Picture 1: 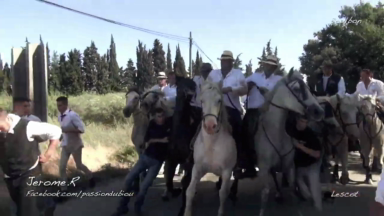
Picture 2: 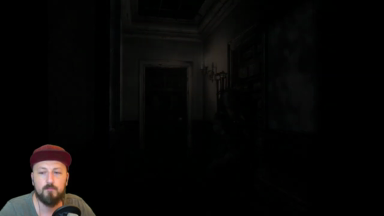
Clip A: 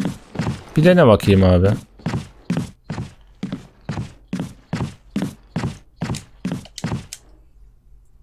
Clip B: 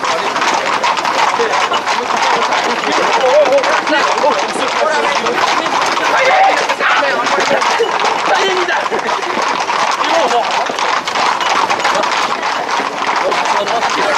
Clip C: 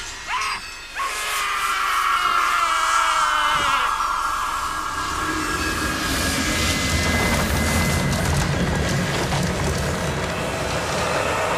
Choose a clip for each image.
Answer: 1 B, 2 A